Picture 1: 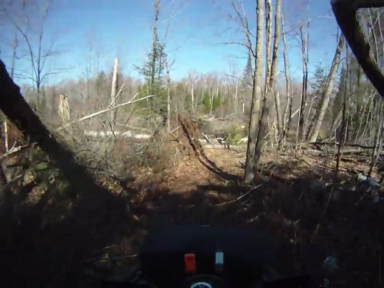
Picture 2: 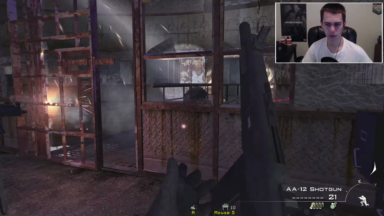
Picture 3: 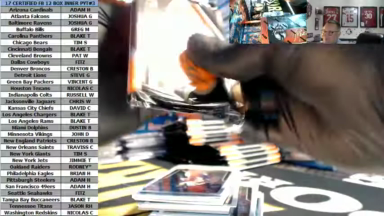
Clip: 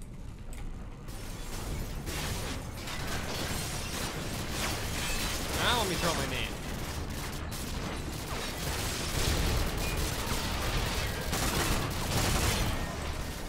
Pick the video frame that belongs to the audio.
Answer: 2